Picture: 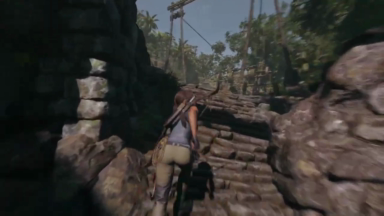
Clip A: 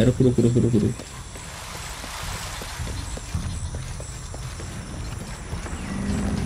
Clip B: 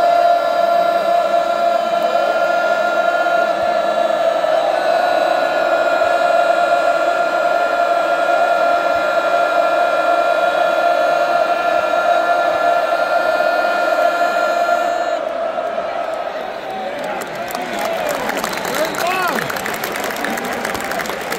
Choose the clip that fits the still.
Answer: A